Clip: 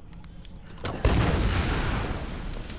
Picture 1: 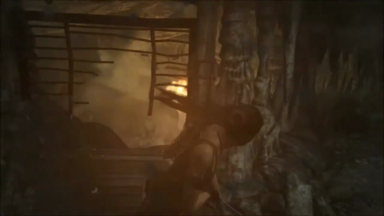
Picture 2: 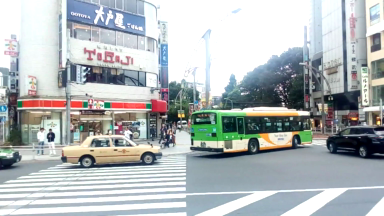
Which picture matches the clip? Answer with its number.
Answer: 1